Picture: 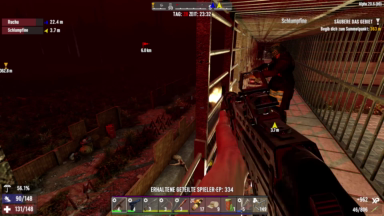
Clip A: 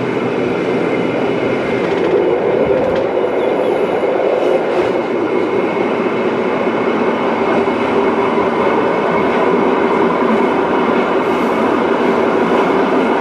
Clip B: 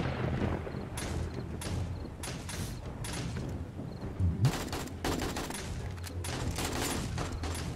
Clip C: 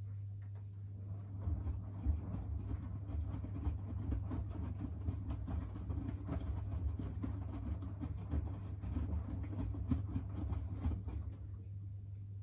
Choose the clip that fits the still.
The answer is B